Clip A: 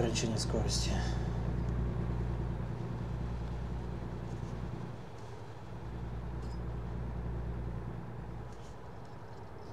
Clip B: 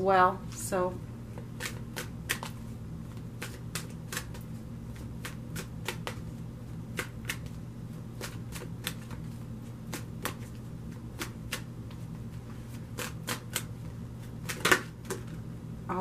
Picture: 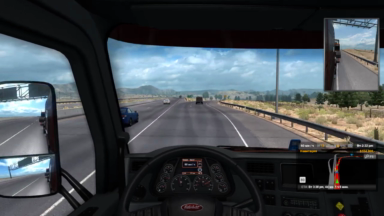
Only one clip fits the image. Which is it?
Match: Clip A